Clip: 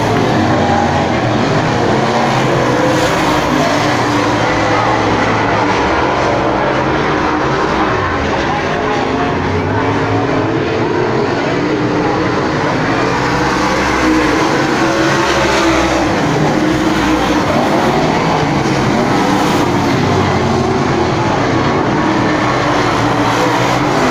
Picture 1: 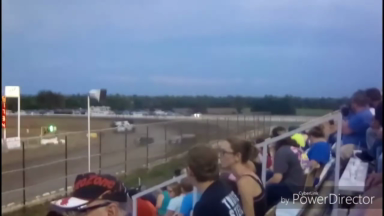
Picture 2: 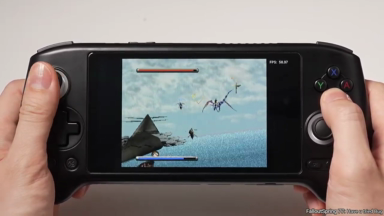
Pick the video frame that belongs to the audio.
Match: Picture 1